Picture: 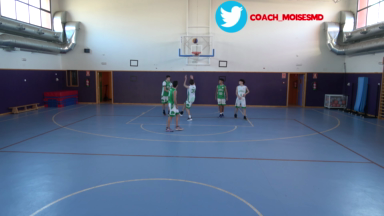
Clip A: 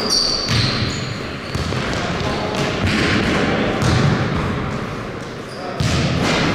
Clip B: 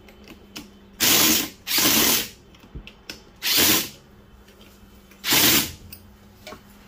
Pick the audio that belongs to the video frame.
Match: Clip A